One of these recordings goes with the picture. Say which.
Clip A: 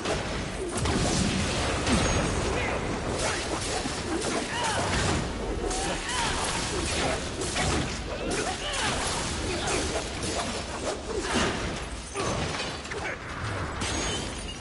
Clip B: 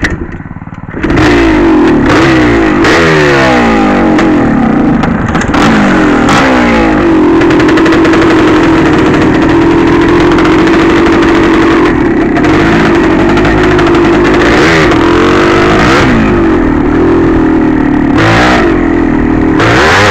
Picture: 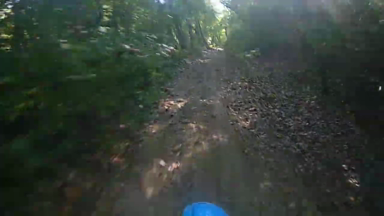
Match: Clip B